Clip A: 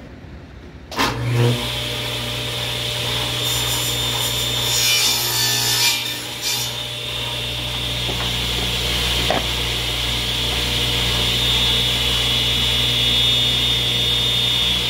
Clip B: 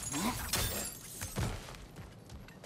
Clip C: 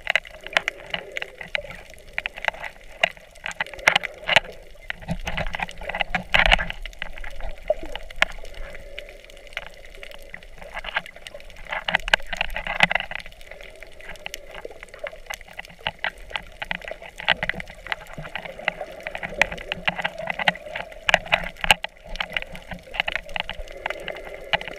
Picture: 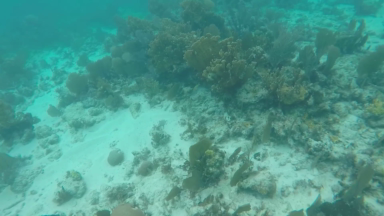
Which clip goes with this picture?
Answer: C